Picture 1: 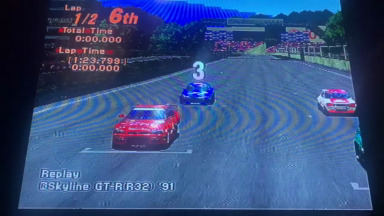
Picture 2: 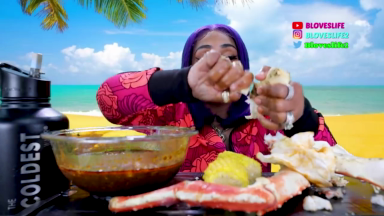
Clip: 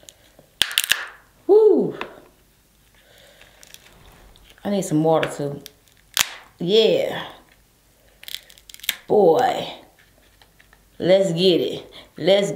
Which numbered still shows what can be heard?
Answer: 2